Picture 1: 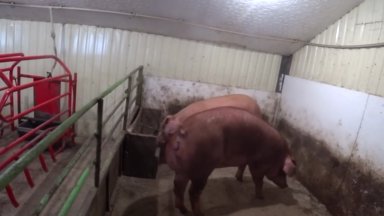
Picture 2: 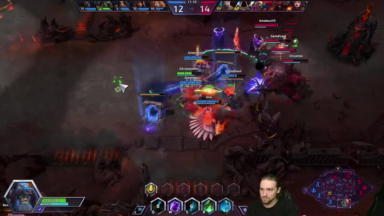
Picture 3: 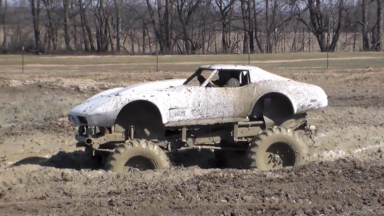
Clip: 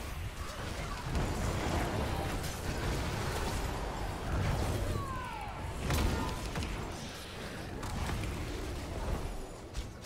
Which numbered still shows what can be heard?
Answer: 2